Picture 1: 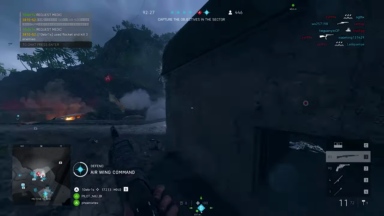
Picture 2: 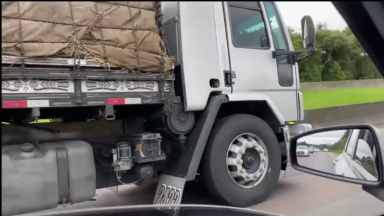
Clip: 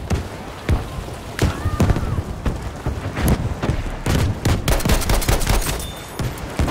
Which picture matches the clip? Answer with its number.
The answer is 1